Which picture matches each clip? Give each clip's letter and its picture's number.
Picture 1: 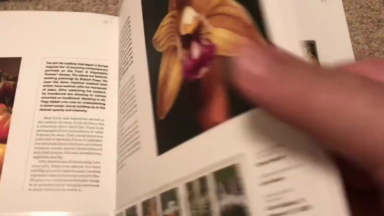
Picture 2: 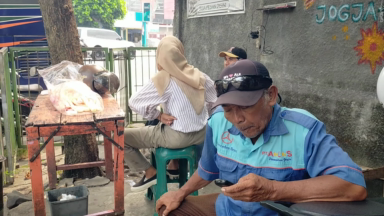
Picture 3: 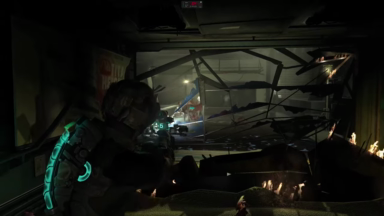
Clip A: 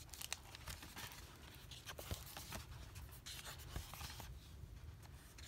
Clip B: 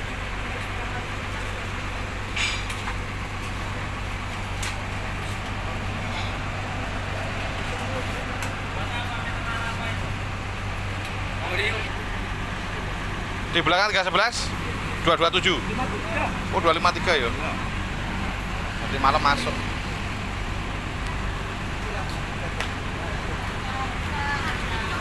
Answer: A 1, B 2